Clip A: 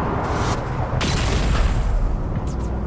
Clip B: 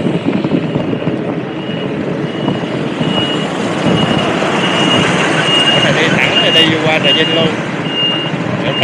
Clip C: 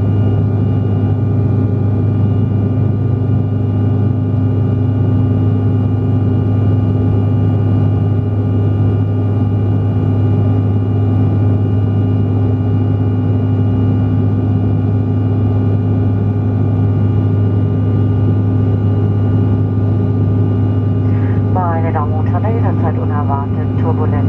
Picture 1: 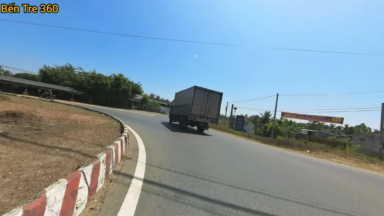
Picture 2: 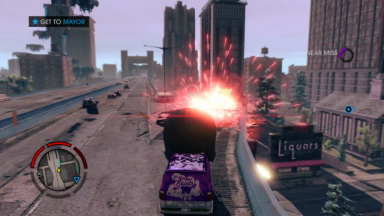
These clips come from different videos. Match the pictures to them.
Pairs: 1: B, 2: A